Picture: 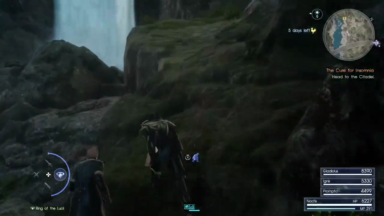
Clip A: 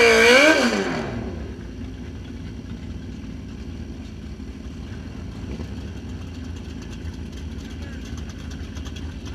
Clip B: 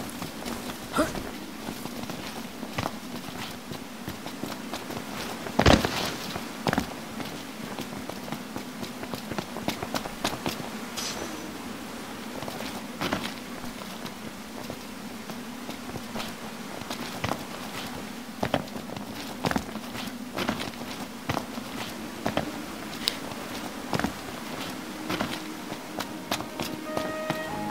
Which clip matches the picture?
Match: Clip B